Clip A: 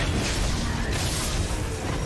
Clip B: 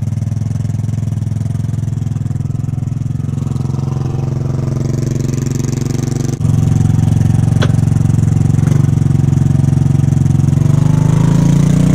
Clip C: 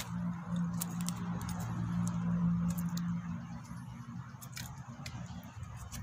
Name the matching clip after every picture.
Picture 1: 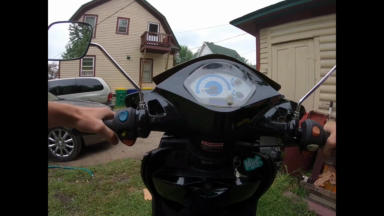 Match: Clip B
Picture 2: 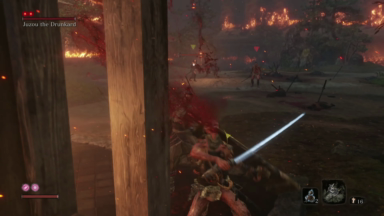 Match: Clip A